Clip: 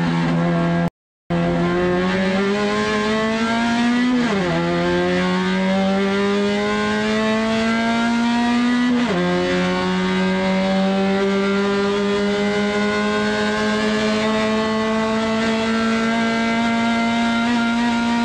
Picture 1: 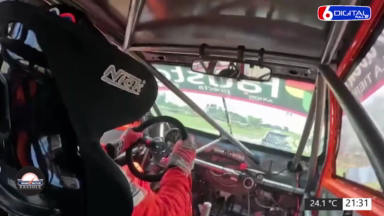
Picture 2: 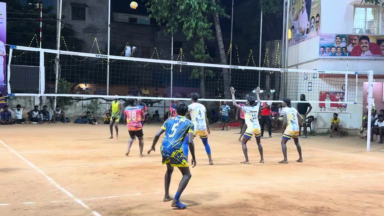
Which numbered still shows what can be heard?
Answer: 1